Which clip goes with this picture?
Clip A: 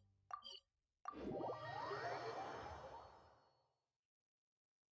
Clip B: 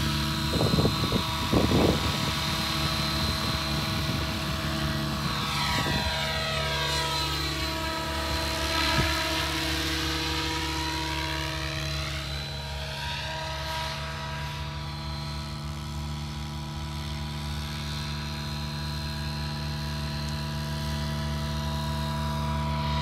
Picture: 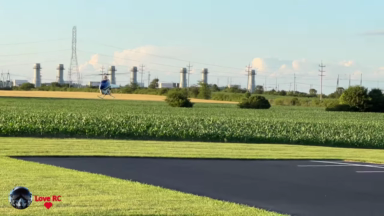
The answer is B